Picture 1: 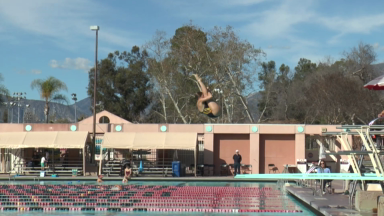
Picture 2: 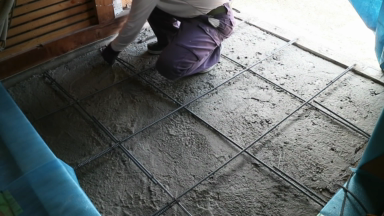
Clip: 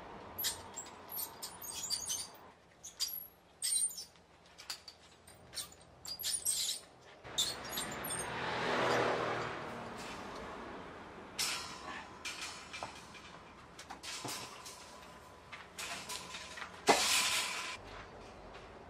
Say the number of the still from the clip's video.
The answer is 2